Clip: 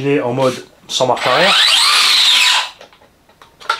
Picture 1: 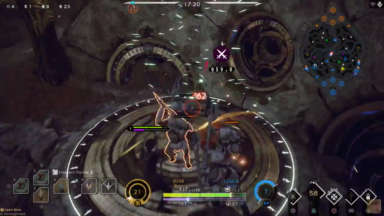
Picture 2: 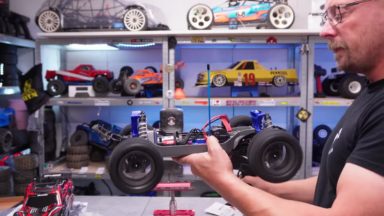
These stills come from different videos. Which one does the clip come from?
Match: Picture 2